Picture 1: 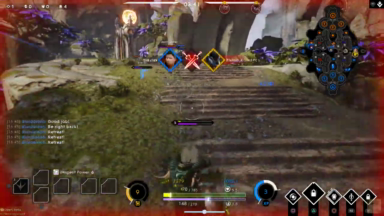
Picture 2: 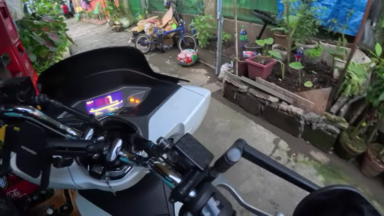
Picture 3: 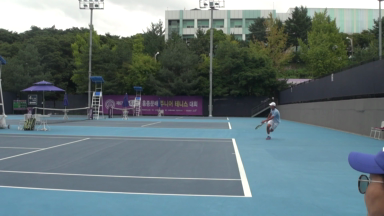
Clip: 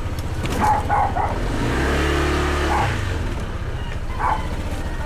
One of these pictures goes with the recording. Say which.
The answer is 2